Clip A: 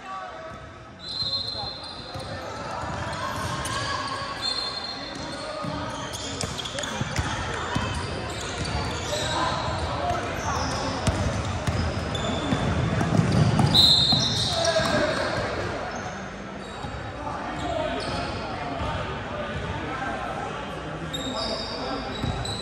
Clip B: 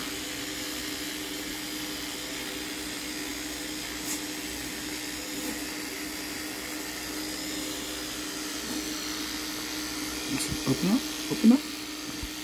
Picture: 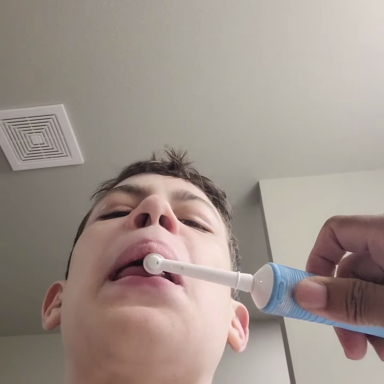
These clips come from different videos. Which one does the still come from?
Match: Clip B